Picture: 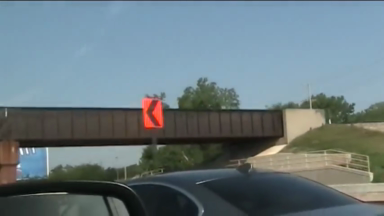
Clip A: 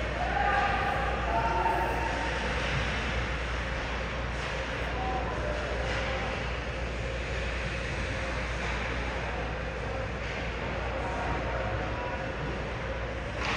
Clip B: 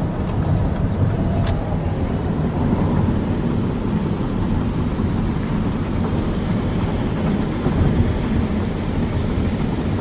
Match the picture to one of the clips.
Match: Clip B